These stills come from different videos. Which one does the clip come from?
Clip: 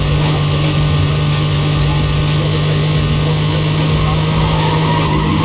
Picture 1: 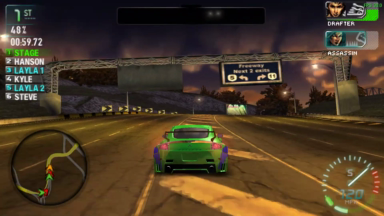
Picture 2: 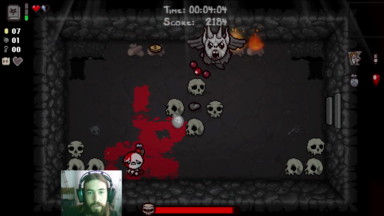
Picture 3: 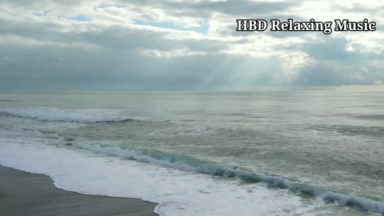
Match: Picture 1